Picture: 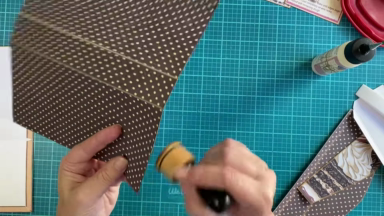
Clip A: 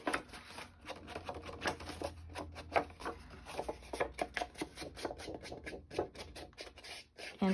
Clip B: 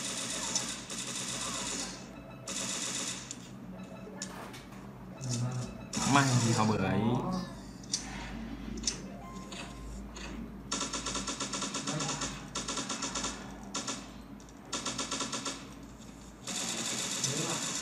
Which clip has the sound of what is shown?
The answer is A